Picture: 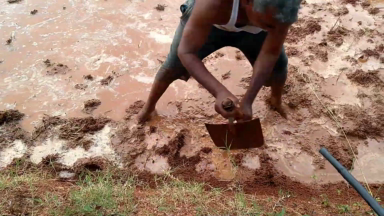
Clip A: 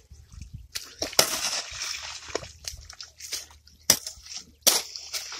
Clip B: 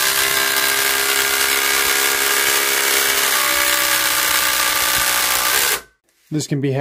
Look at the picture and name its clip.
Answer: A